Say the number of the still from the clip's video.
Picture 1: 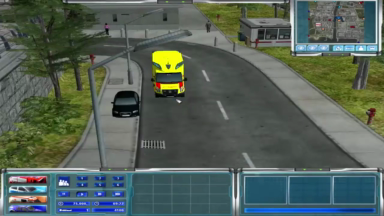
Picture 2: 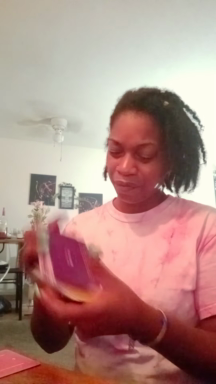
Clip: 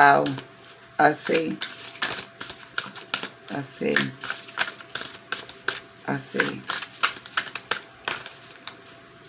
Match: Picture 2